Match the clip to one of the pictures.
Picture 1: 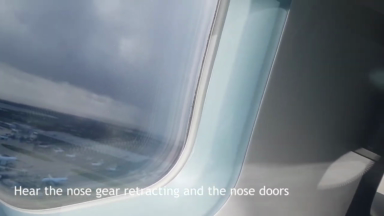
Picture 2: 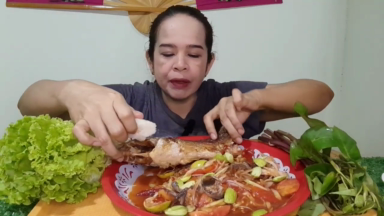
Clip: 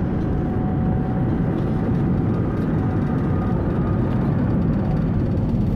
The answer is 1